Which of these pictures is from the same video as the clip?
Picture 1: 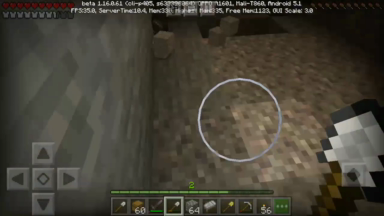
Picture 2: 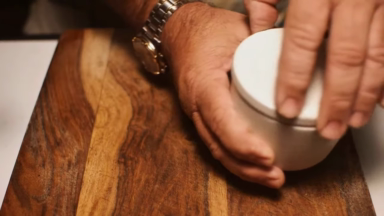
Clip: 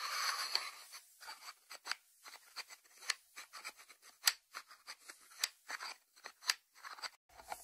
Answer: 2